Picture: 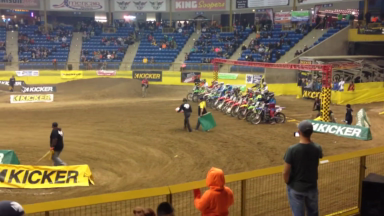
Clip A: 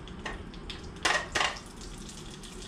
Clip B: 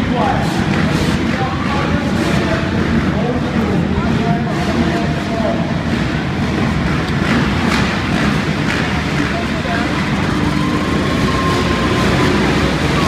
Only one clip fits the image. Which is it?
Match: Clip B